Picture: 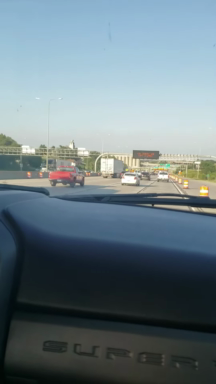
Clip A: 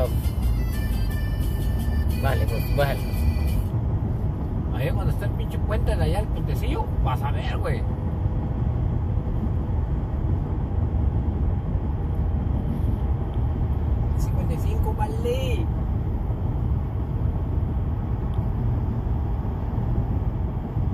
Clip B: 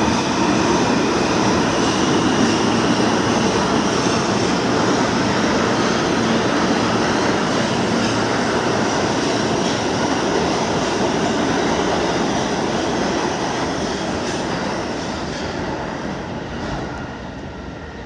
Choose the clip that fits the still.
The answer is A